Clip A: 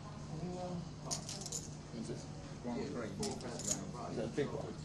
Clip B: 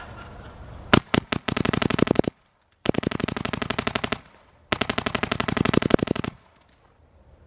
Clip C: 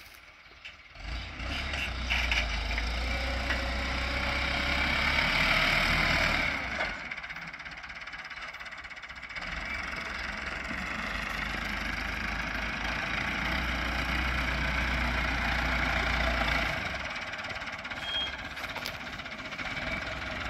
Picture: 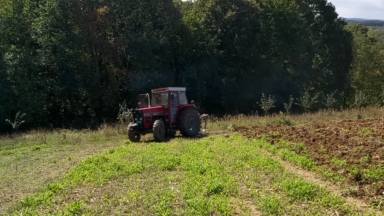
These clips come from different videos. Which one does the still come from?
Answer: C